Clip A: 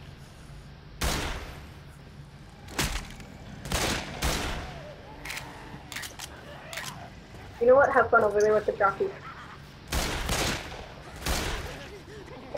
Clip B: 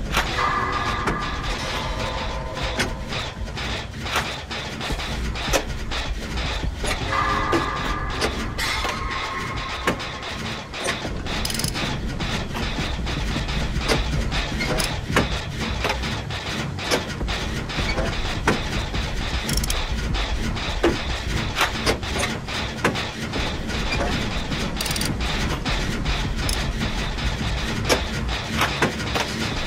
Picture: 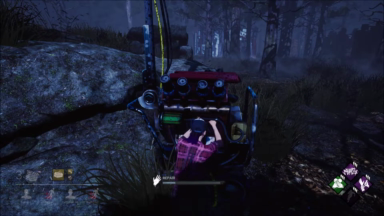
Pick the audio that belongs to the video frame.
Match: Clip B